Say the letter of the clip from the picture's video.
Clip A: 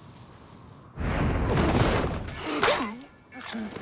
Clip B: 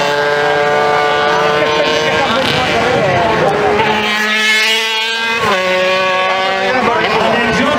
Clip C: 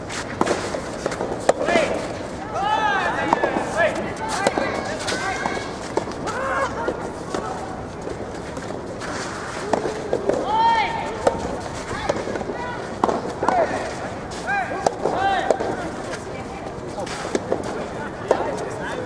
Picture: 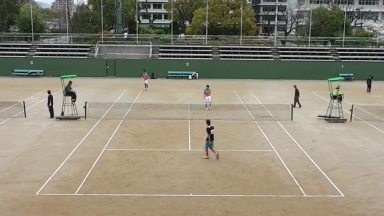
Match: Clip C